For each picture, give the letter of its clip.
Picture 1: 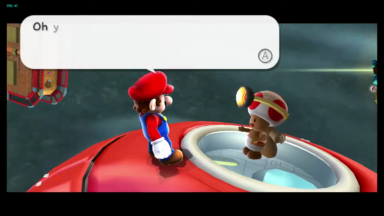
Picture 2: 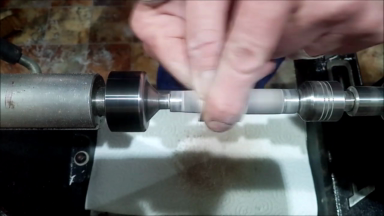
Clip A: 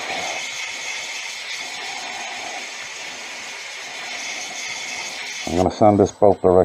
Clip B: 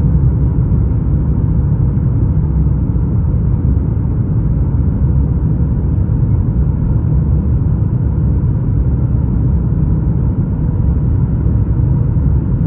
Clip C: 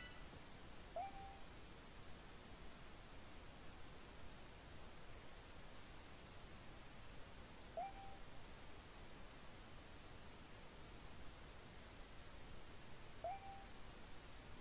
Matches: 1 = C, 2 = A